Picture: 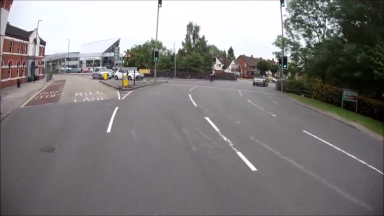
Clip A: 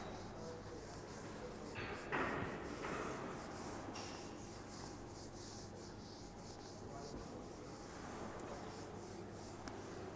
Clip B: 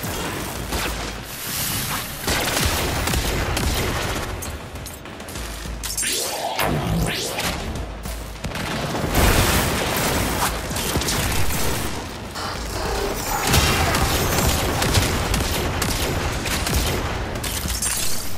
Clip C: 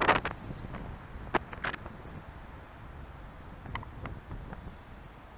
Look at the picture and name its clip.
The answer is C